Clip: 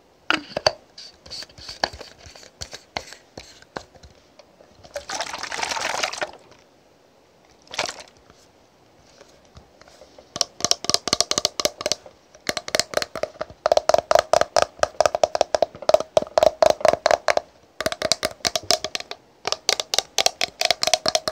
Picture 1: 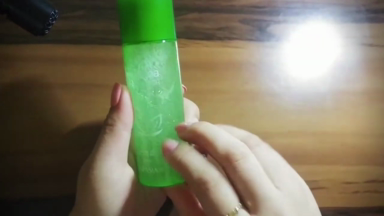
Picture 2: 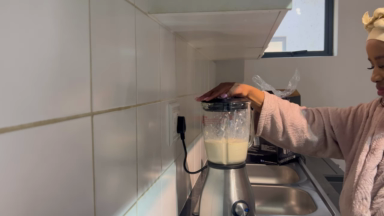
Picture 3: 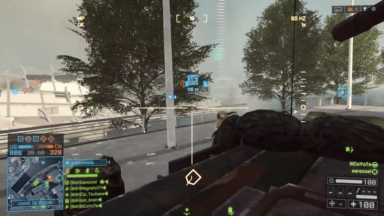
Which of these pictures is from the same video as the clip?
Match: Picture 1